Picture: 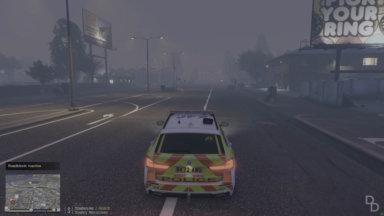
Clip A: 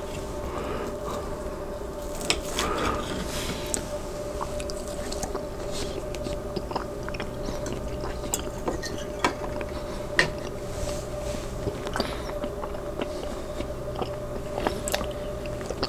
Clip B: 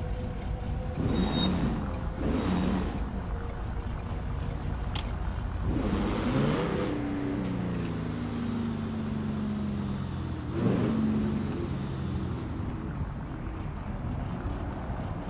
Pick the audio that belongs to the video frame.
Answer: B